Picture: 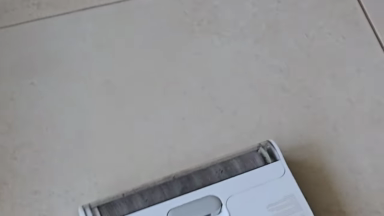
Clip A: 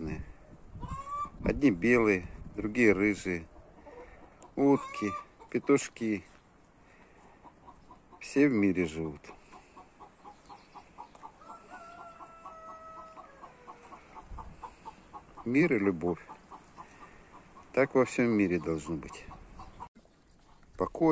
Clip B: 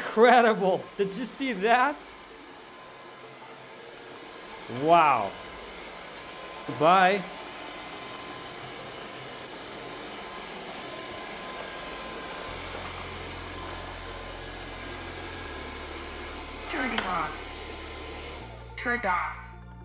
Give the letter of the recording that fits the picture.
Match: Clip B